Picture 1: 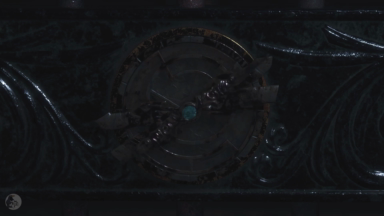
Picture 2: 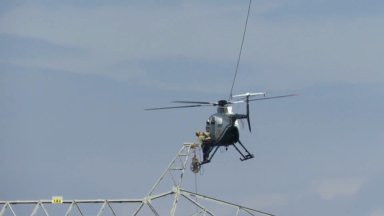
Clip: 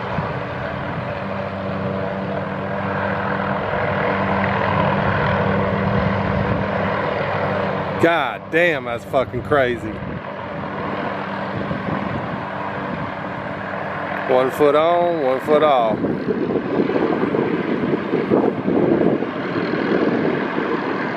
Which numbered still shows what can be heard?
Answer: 2